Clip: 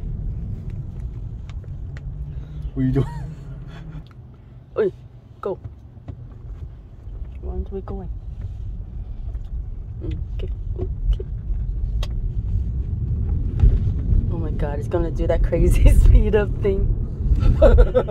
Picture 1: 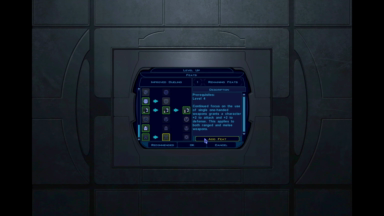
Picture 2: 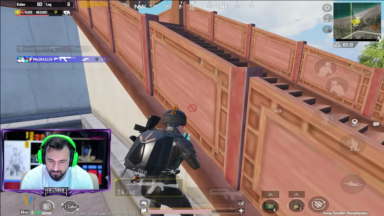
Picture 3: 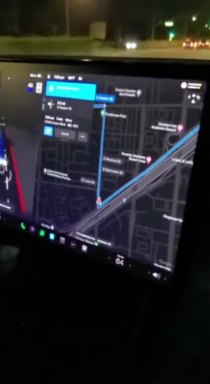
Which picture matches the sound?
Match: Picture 3